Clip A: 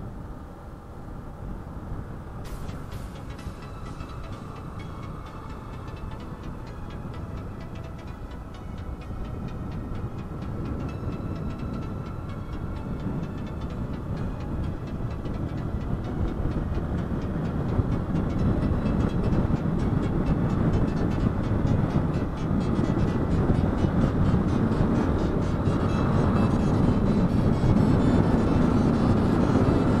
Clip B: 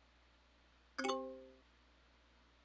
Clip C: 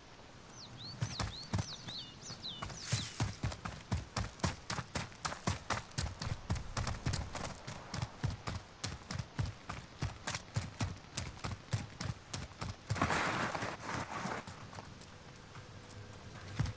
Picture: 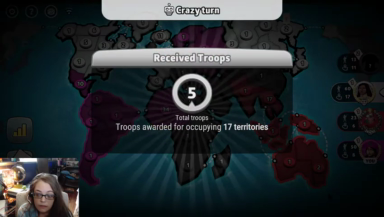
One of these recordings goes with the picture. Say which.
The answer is B